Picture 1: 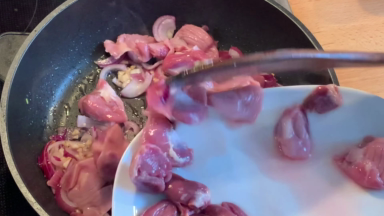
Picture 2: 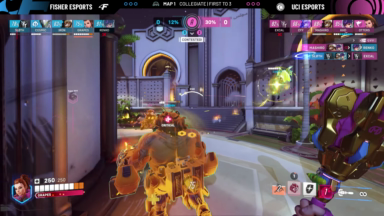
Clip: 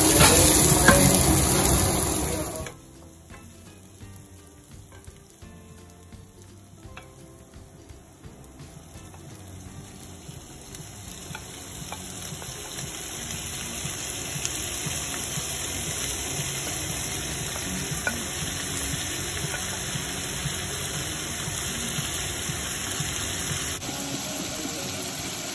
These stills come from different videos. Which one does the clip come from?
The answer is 1